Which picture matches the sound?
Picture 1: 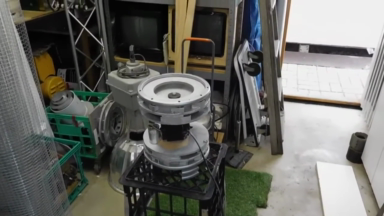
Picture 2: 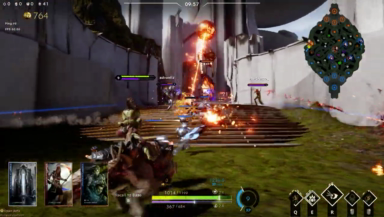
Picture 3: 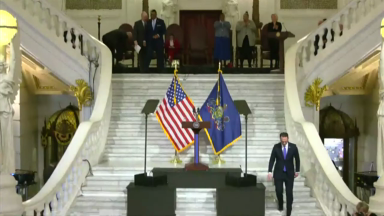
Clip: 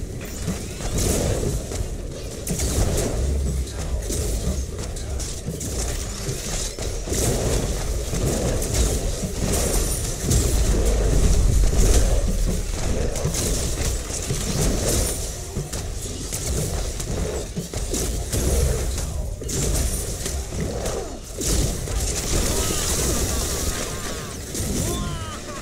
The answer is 2